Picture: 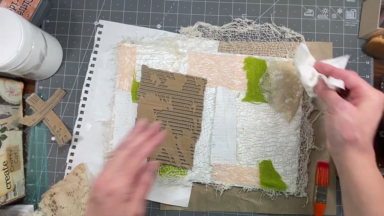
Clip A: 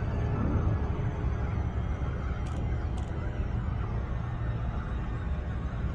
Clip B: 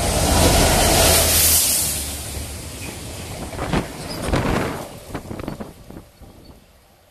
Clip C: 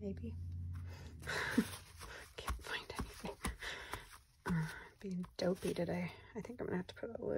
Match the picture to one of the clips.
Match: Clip C